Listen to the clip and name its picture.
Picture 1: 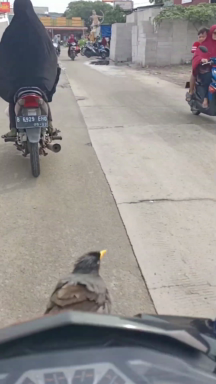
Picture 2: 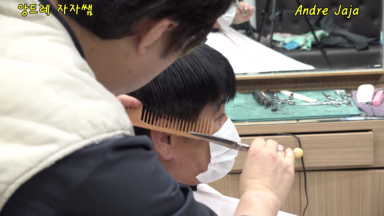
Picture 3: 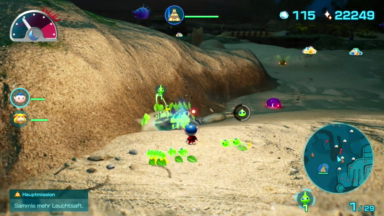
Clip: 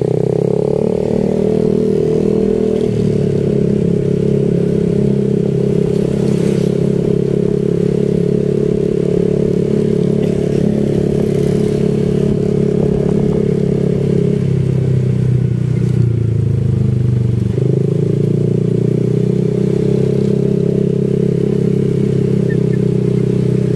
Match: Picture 1